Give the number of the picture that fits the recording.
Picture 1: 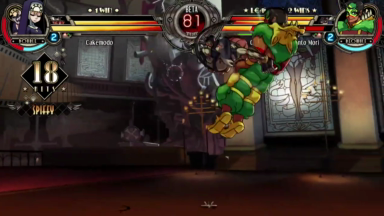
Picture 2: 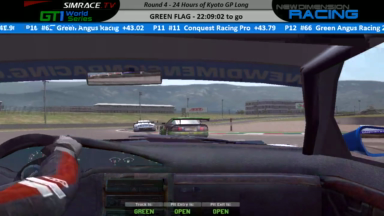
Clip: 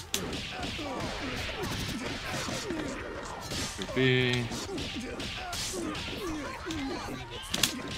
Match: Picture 1